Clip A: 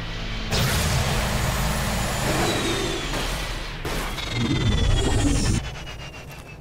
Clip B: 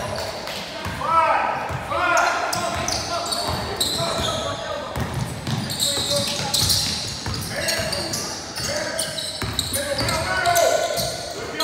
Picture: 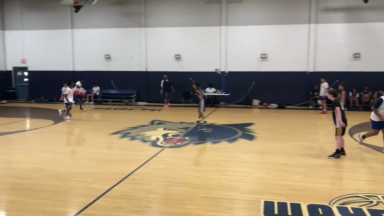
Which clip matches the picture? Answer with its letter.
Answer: B